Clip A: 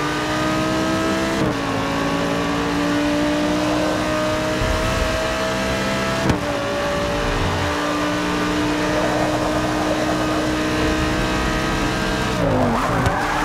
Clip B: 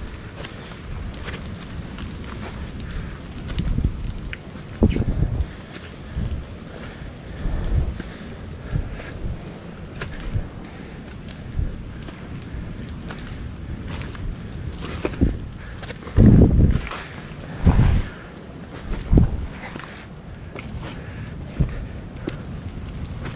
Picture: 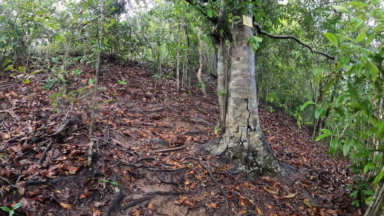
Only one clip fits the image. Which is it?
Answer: B